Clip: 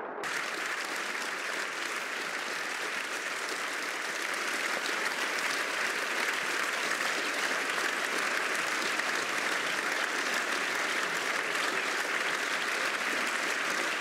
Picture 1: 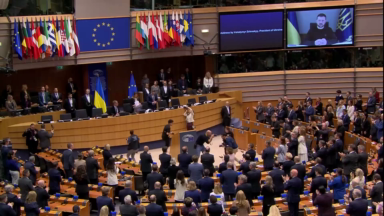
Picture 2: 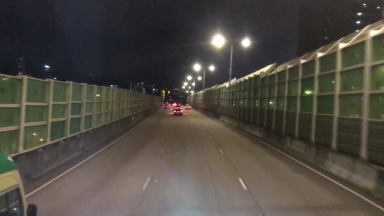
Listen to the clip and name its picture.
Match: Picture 1